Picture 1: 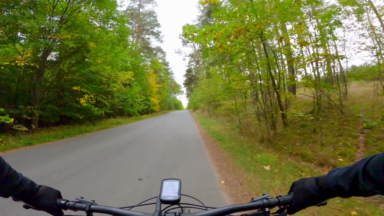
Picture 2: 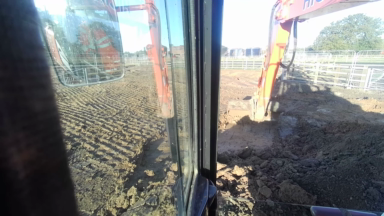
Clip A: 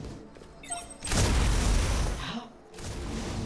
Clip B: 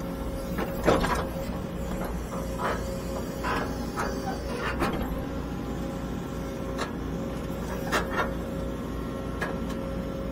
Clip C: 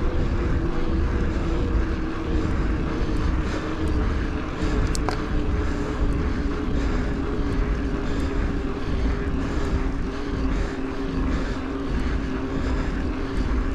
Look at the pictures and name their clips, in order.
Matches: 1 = C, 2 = B